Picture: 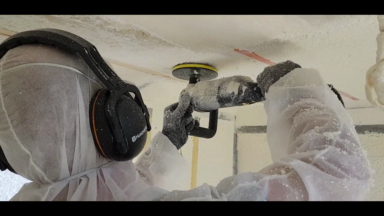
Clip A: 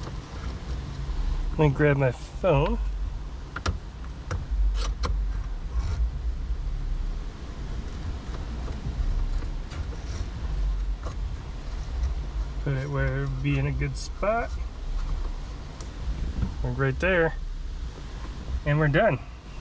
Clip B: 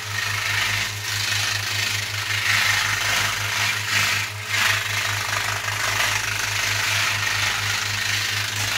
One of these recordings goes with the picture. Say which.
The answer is B